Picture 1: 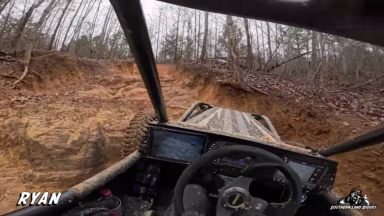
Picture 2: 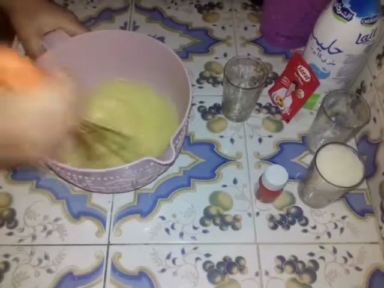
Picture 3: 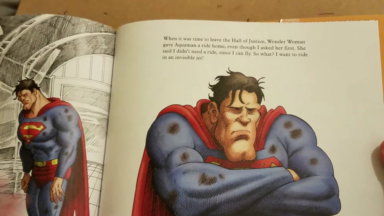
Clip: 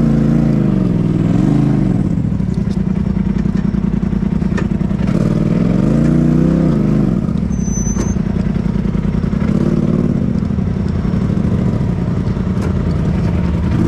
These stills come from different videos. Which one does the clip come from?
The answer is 1